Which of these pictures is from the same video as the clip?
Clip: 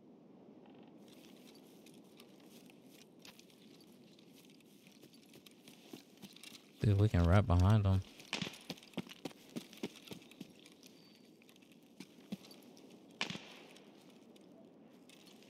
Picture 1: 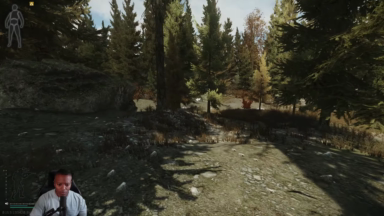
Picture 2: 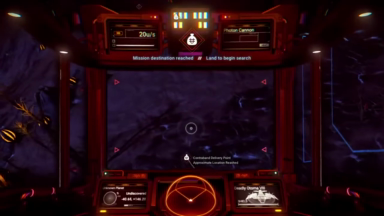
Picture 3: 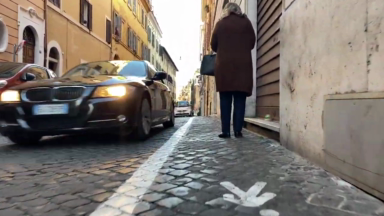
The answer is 1